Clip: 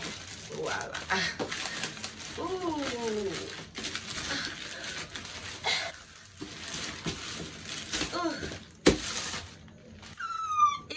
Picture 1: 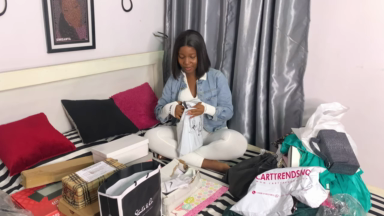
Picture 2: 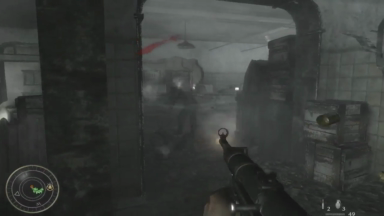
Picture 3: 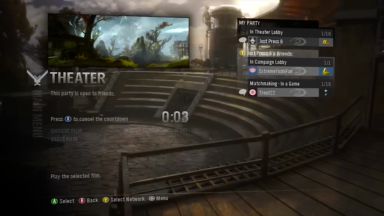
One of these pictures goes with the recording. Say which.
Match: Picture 1